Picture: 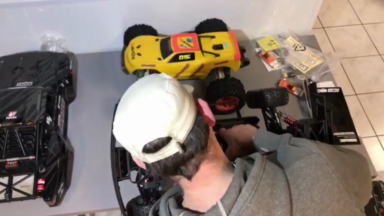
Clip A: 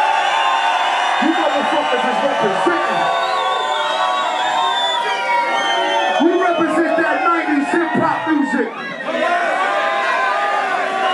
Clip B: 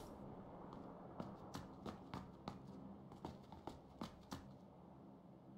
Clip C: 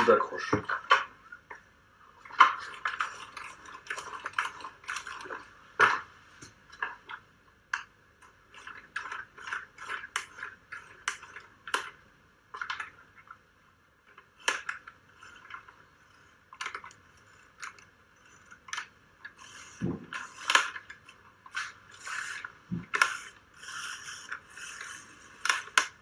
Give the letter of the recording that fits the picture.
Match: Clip C